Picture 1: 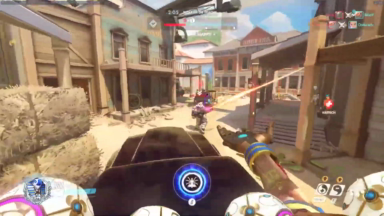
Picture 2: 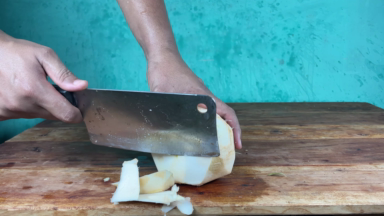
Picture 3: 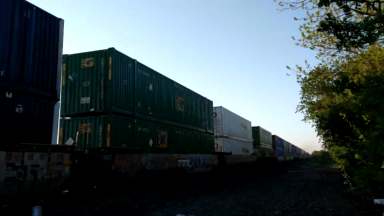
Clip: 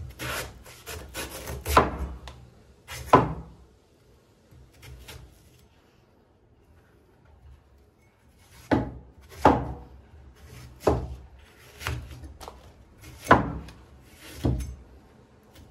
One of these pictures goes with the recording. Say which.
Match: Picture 2